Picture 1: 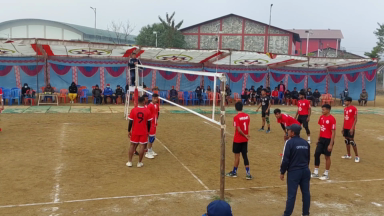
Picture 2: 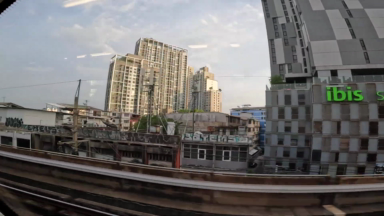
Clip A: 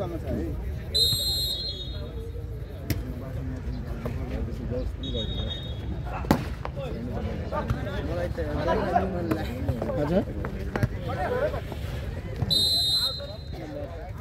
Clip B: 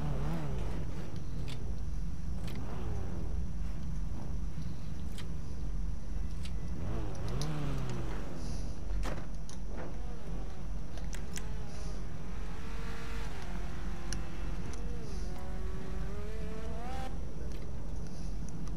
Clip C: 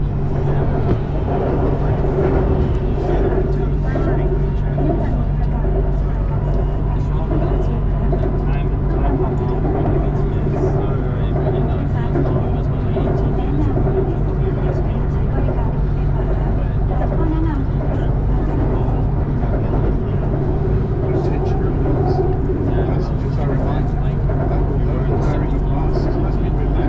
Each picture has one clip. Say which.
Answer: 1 A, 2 C